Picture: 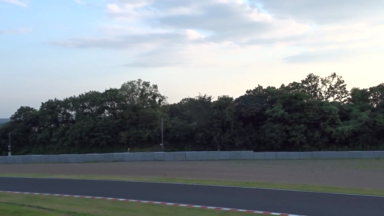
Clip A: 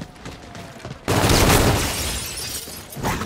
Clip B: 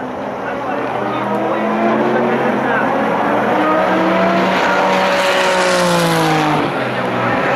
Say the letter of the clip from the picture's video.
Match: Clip B